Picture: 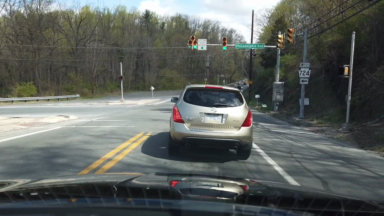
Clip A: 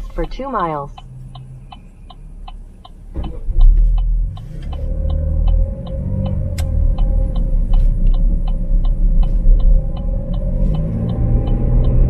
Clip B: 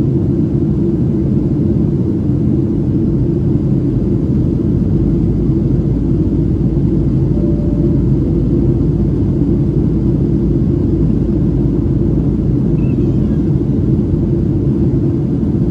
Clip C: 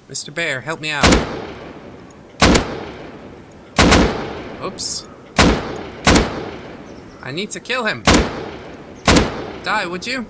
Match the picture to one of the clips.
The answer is A